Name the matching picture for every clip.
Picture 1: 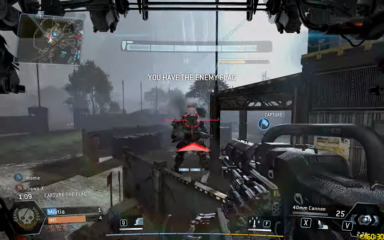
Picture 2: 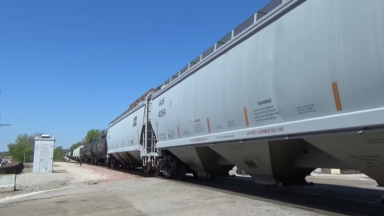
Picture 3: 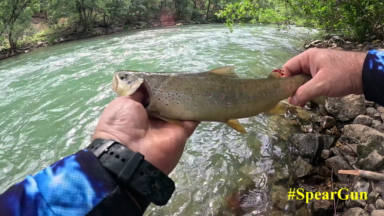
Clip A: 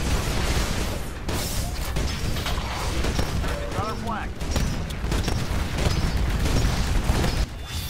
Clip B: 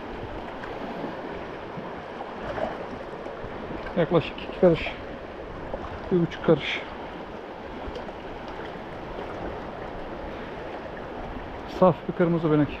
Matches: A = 1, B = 3